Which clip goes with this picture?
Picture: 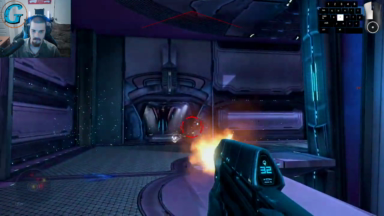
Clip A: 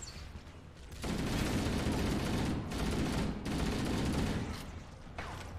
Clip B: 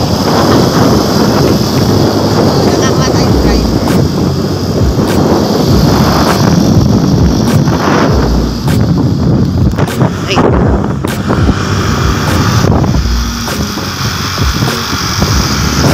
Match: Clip A